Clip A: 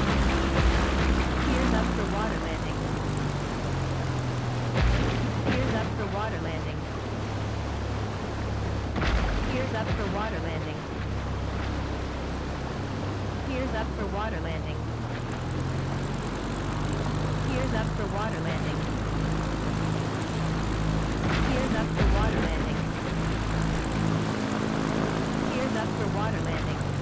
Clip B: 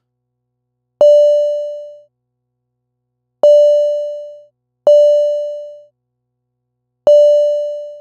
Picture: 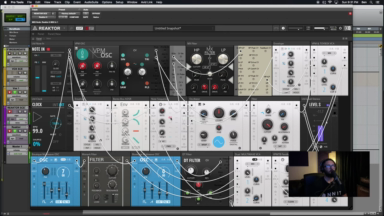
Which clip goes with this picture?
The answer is B